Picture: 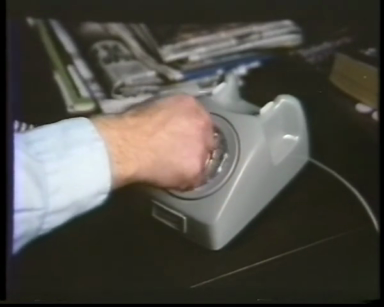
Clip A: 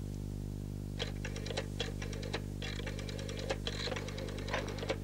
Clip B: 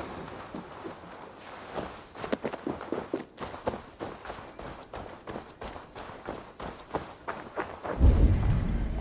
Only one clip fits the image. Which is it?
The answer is A